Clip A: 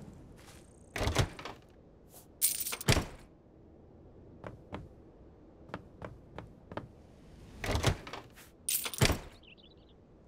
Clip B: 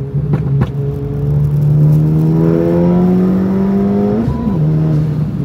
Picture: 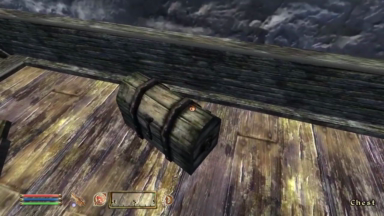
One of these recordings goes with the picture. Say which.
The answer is A